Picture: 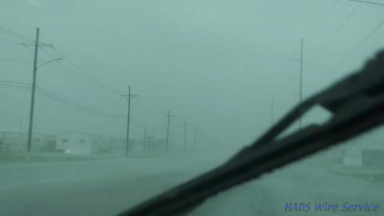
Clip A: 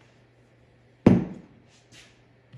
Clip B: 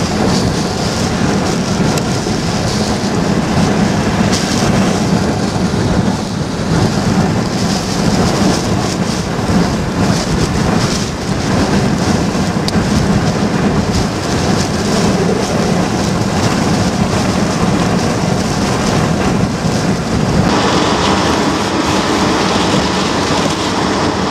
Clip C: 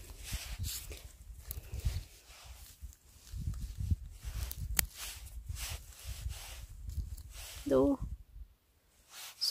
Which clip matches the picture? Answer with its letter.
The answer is B